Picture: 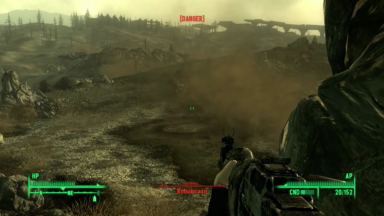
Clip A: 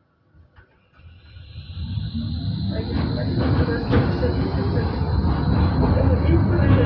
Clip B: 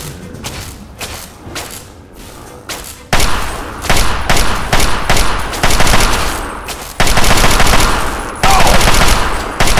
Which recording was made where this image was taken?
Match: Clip B